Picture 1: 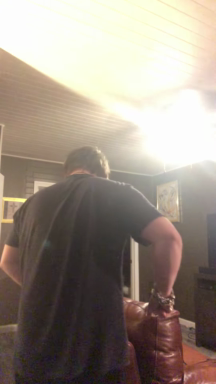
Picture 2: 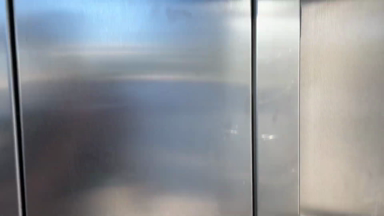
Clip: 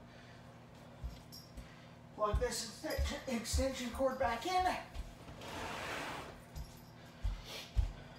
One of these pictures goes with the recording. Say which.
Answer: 1